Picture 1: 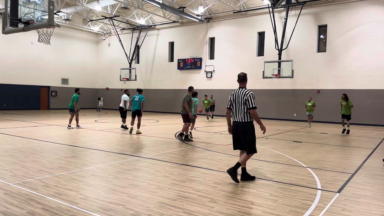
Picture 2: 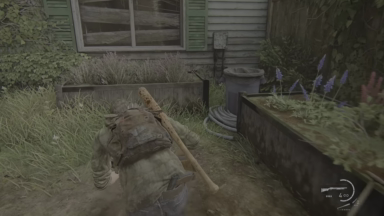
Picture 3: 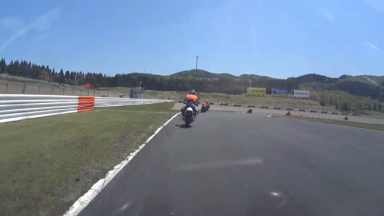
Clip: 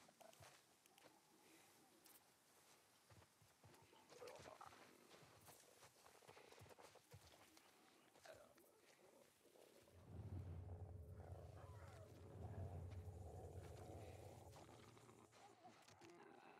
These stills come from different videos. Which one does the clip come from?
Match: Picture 2